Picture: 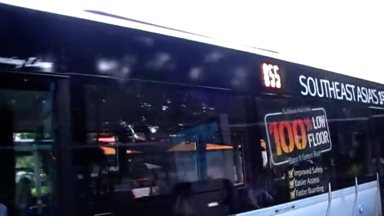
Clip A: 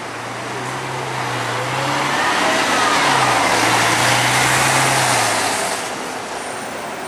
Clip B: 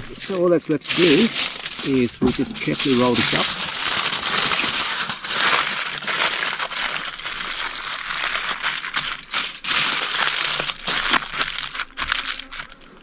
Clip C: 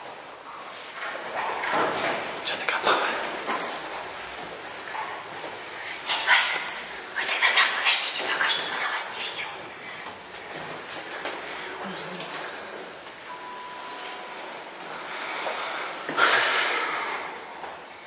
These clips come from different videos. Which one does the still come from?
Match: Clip A